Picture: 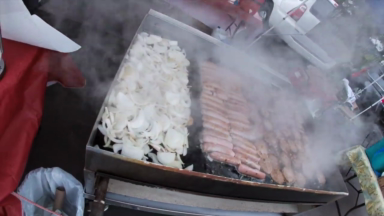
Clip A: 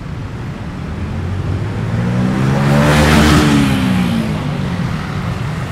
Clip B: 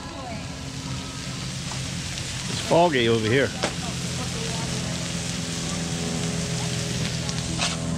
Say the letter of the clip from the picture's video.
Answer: B